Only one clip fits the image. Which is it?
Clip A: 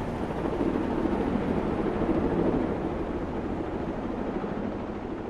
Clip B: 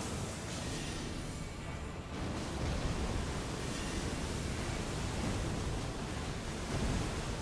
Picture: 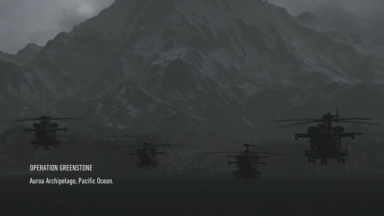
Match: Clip A